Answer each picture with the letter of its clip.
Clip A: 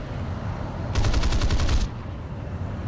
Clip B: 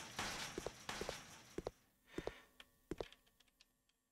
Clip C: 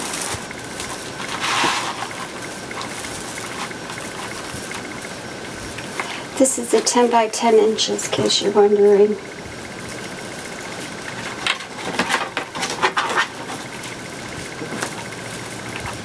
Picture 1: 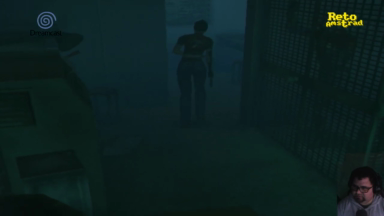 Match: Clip B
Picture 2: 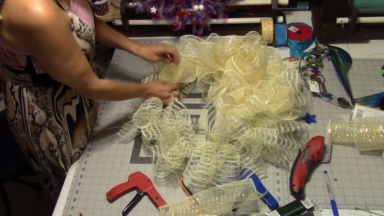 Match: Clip C